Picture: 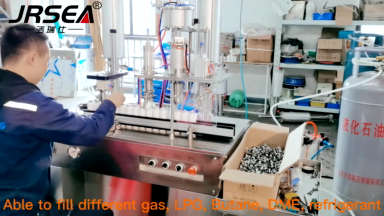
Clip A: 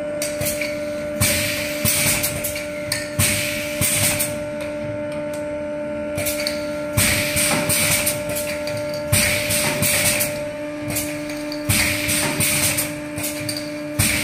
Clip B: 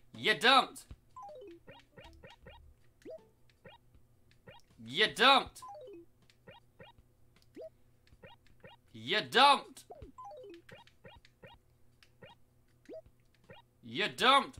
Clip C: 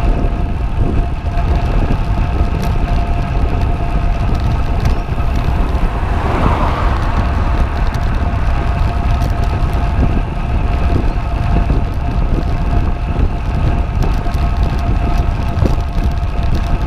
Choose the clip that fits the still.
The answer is A